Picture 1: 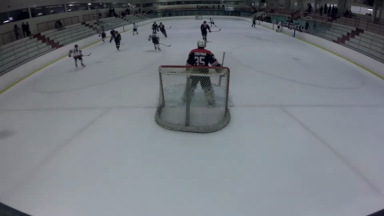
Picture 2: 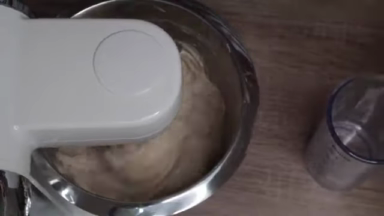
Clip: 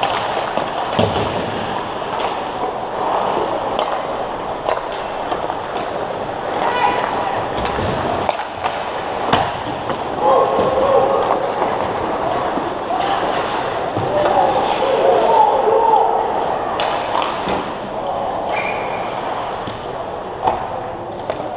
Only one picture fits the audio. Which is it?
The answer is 1